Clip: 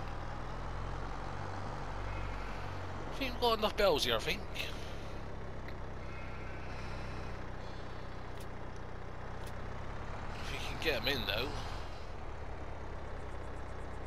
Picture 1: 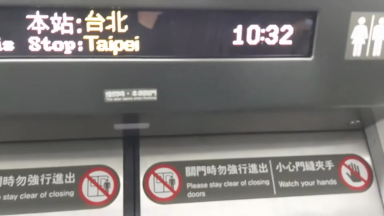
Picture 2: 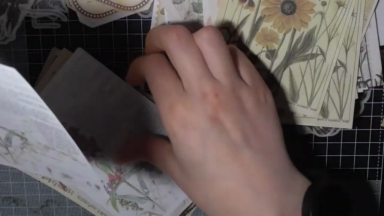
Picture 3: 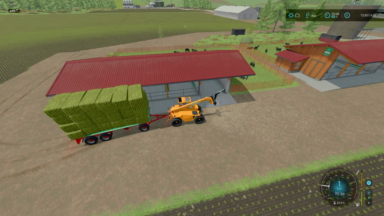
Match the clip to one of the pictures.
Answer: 3